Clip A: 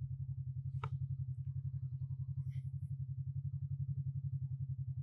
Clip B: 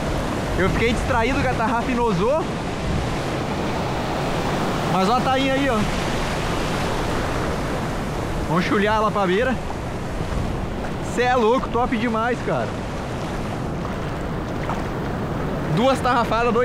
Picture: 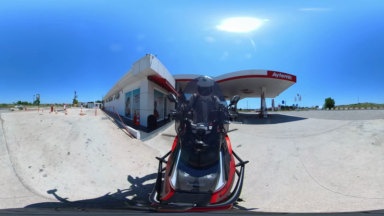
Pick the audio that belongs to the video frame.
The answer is A